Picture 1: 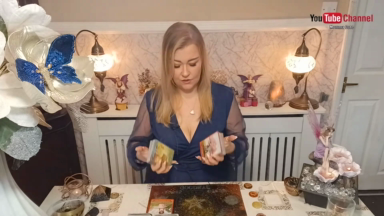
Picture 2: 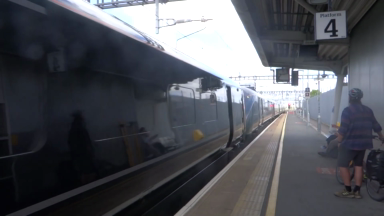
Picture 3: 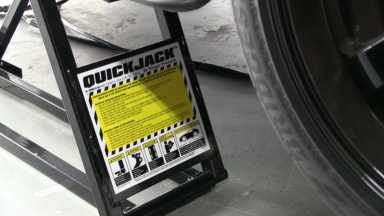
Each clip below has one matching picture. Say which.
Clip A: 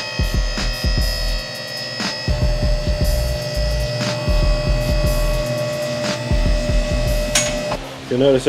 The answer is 3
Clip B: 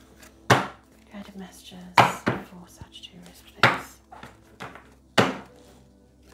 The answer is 1